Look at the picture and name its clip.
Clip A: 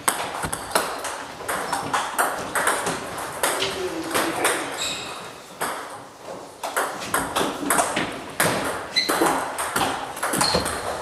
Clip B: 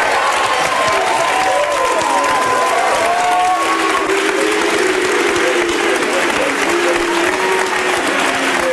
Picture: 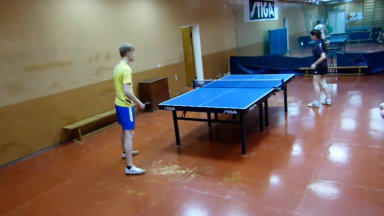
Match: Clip A